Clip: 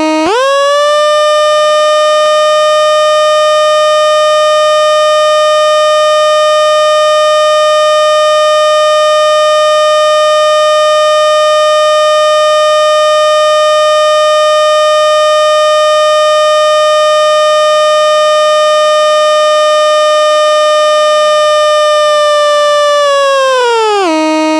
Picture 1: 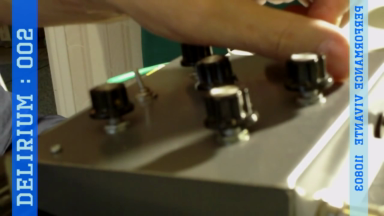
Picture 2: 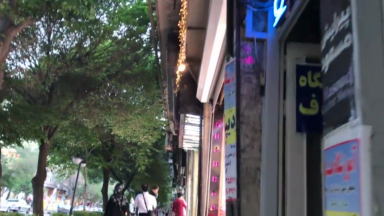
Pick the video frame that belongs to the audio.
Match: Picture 1